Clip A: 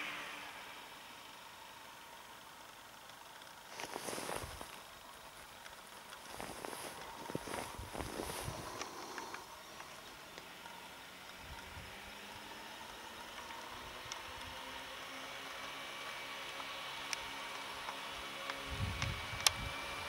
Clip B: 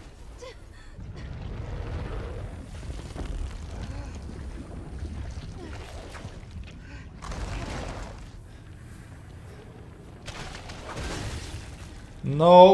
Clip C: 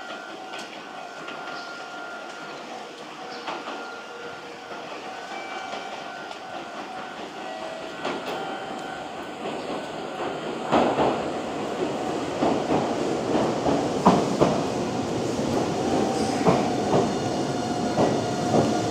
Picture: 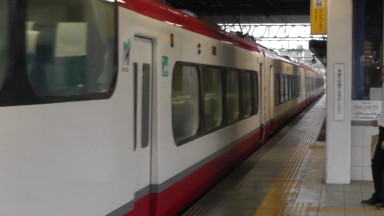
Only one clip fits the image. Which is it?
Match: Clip C